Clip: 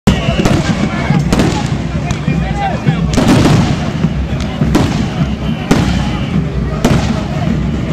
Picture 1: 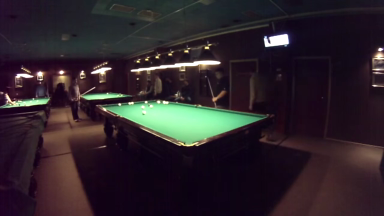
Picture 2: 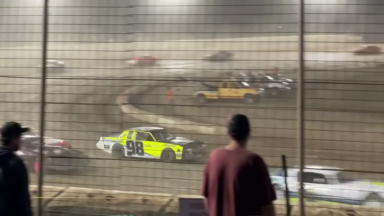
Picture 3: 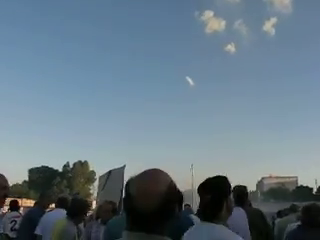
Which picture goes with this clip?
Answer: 3